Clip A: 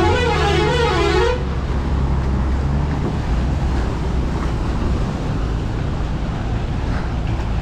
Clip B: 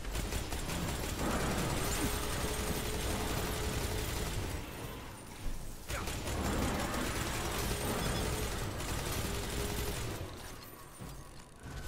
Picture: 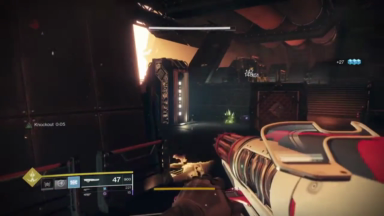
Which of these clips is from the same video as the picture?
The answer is B